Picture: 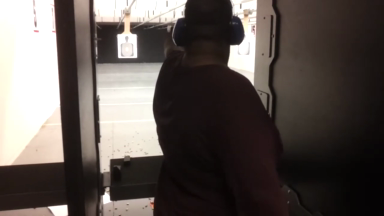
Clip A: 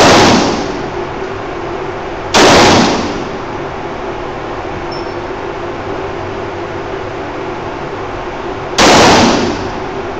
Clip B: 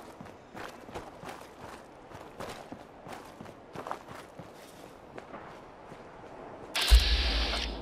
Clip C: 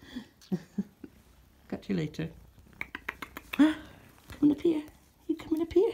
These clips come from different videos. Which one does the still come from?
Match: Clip A